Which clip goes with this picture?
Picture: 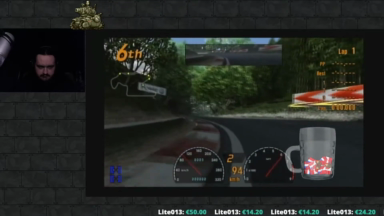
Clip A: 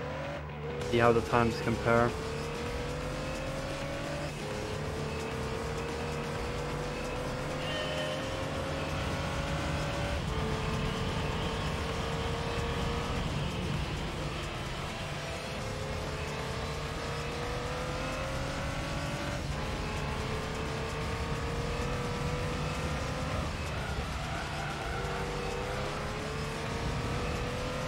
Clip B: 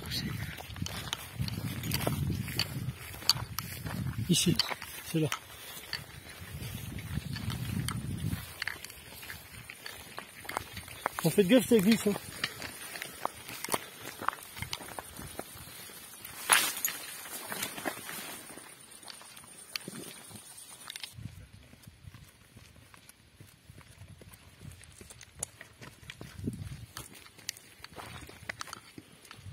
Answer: A